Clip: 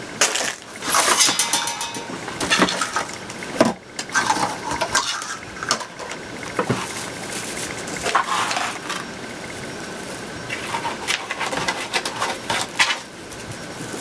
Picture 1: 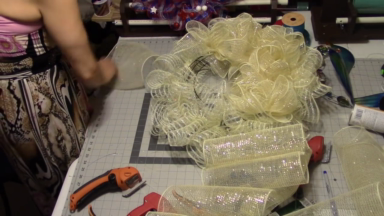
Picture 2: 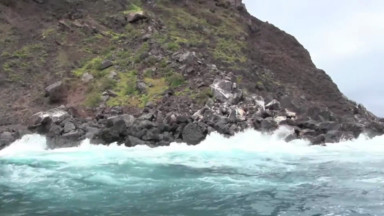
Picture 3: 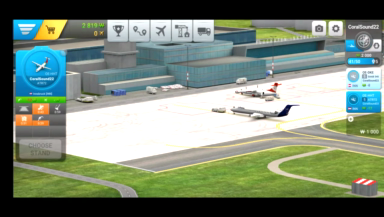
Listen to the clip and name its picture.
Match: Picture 1